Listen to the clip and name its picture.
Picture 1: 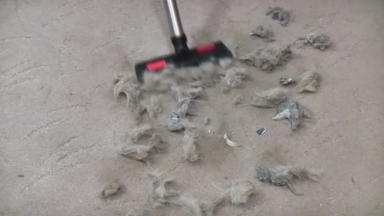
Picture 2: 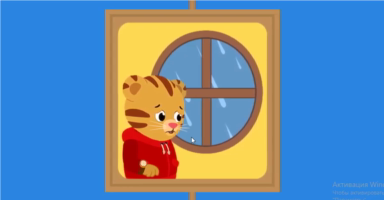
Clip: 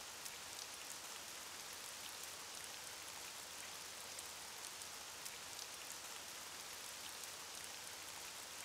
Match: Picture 2